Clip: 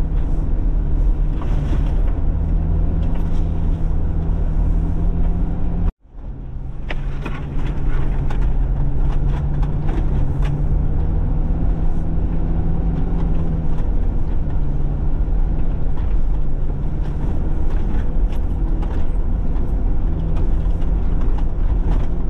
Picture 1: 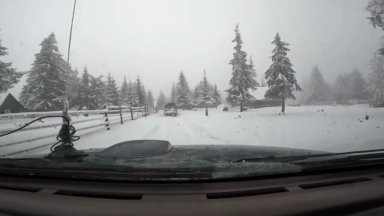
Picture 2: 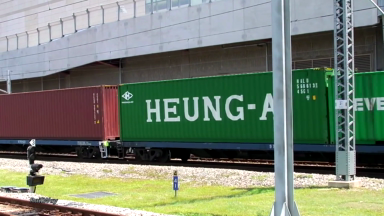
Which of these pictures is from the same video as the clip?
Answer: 1